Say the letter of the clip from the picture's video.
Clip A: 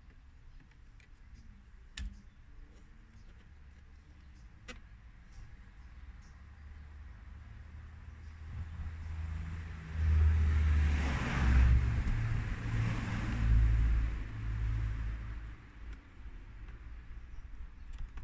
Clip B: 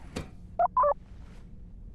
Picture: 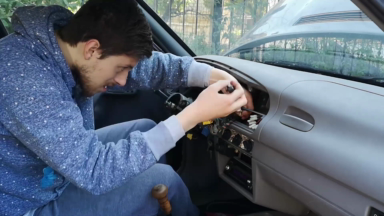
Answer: A